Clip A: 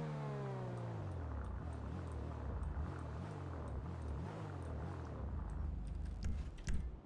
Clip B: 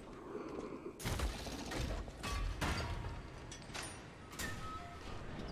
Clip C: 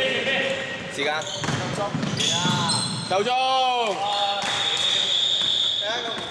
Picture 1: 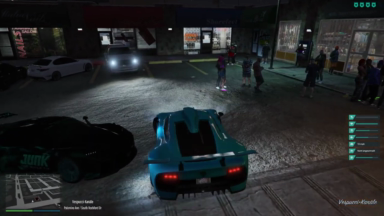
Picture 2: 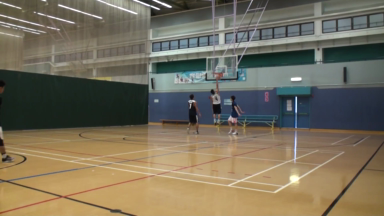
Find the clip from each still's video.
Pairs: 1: A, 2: C